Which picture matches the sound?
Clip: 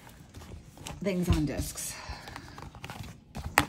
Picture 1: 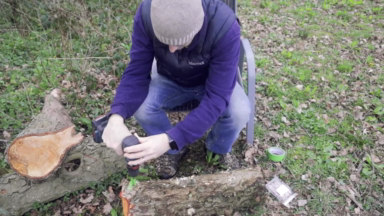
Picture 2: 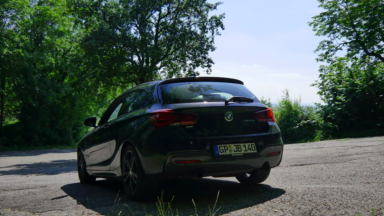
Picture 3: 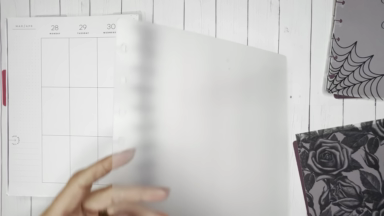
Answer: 3